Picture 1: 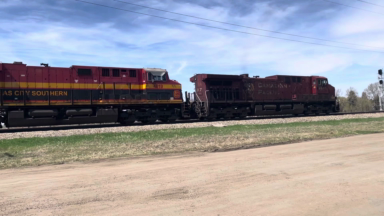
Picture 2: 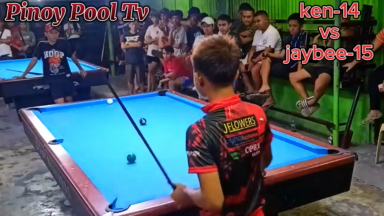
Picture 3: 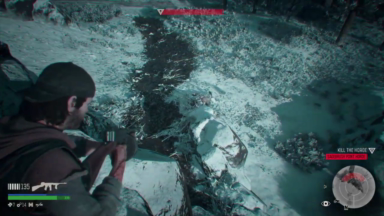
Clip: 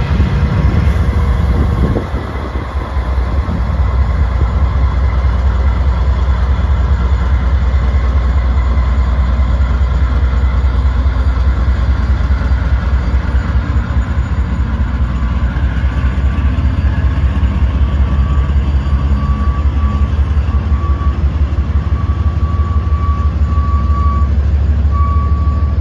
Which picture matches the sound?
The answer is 1